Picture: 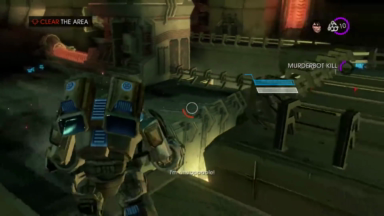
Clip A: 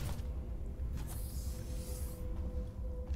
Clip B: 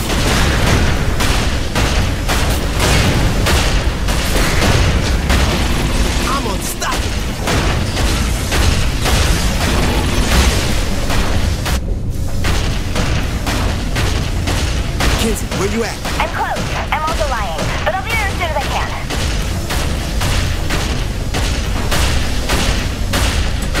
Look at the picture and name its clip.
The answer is B